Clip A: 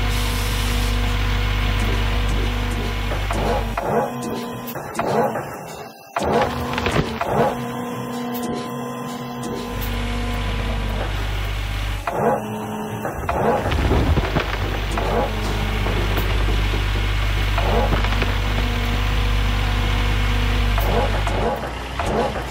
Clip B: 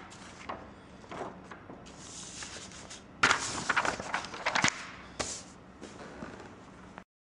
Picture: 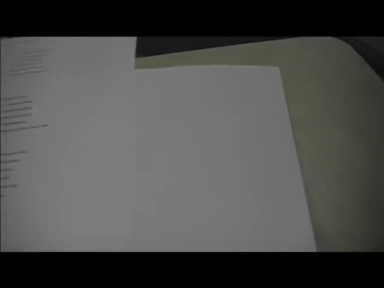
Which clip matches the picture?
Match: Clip B